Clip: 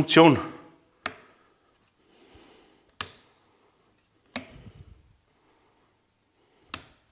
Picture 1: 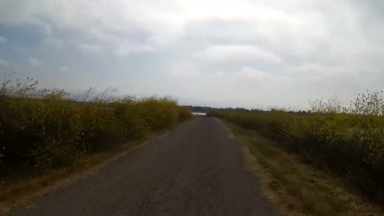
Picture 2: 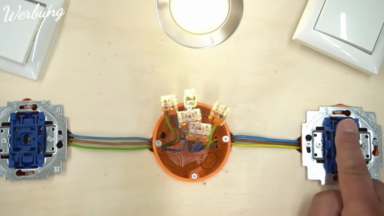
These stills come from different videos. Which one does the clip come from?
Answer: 2